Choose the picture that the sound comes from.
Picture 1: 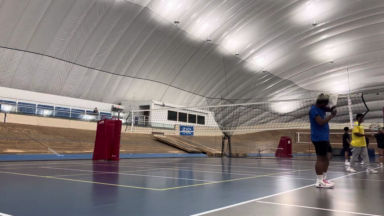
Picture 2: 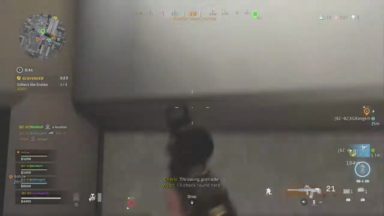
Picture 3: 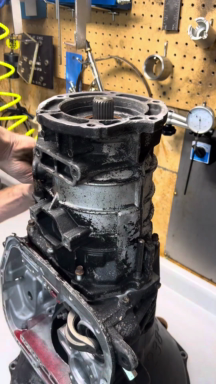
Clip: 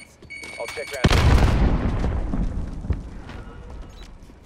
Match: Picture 2